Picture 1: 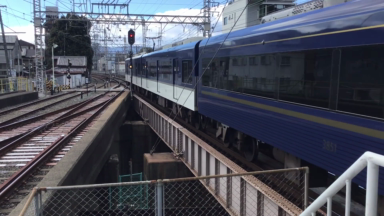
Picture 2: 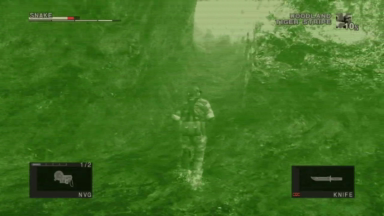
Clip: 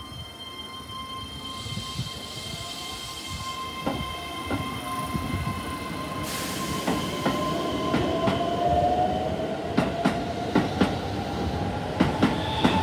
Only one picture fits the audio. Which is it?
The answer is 1